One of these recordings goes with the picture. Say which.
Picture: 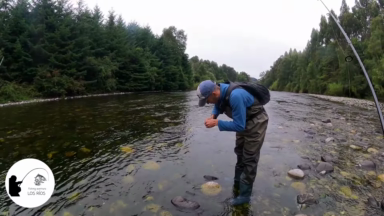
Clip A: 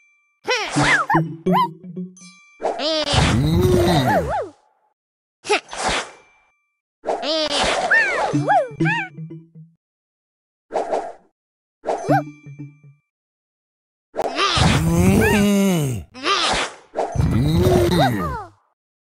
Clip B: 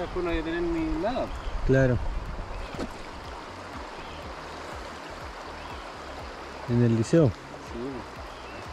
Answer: B